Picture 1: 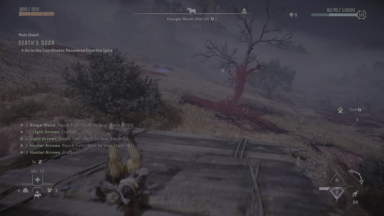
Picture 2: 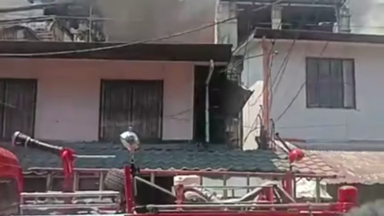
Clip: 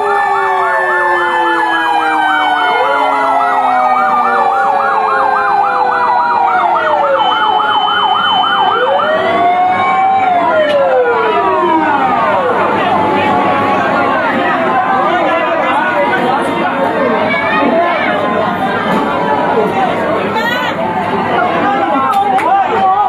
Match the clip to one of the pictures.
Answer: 2